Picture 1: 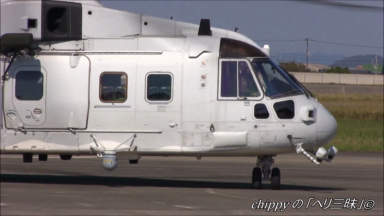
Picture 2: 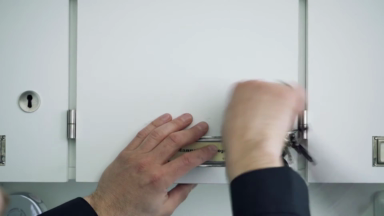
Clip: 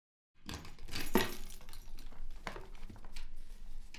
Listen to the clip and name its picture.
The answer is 2